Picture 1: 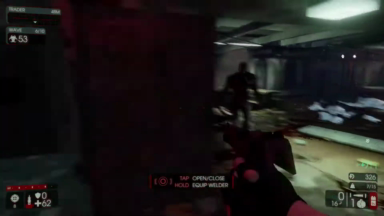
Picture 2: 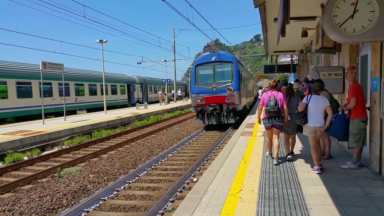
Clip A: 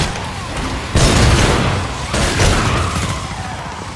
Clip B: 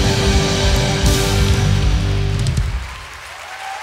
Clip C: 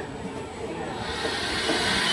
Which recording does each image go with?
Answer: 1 A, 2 C